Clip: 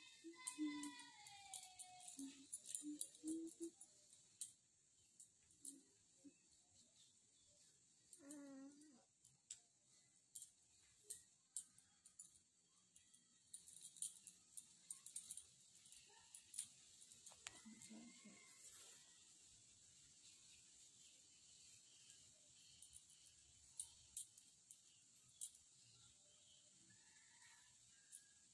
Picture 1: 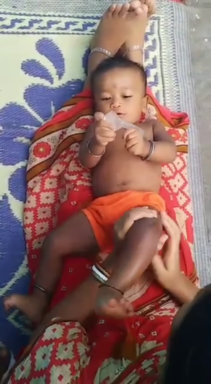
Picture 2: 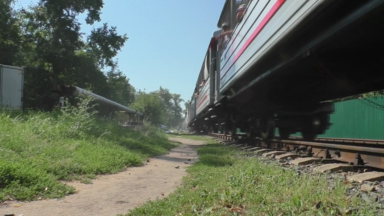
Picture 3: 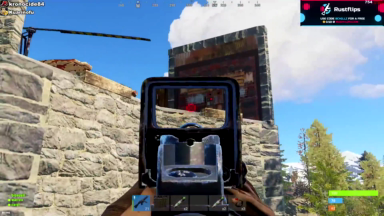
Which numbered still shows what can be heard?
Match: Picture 1